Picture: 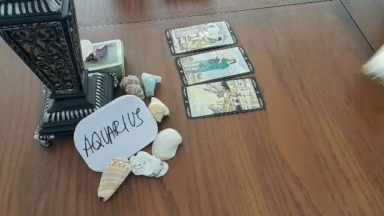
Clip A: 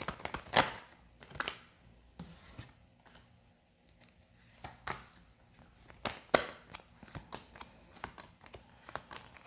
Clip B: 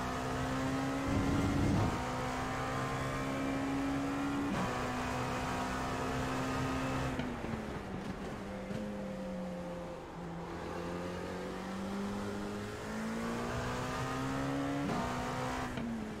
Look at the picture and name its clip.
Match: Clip A